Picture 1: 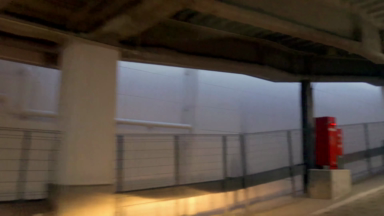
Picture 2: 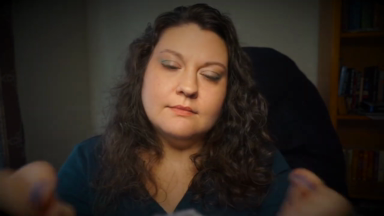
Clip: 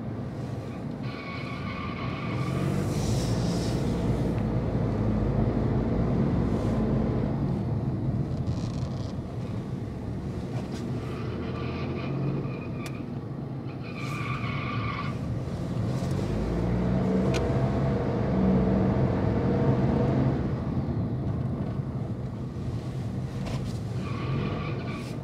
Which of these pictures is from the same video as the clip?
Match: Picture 1